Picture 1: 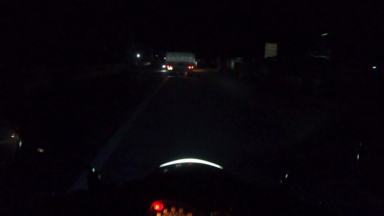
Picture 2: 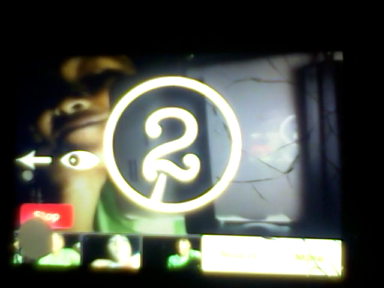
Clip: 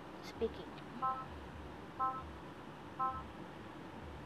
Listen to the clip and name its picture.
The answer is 2